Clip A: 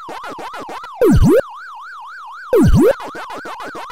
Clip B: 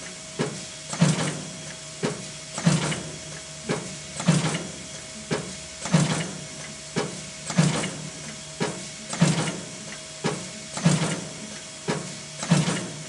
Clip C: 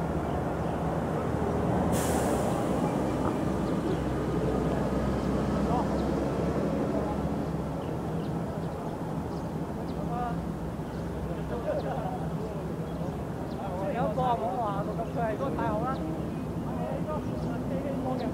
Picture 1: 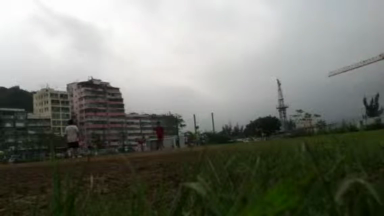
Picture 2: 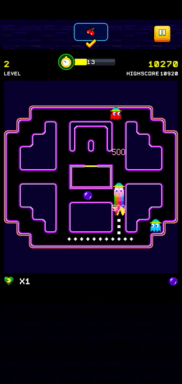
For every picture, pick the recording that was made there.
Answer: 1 C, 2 A